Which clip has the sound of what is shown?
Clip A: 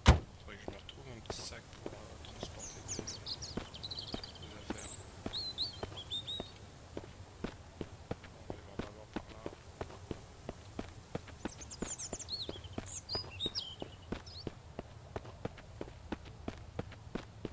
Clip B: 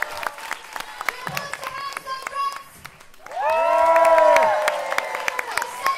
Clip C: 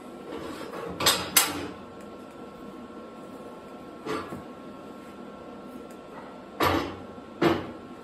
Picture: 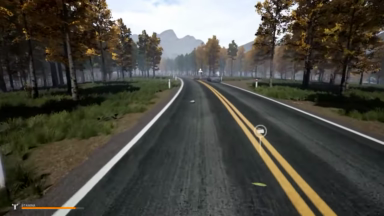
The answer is A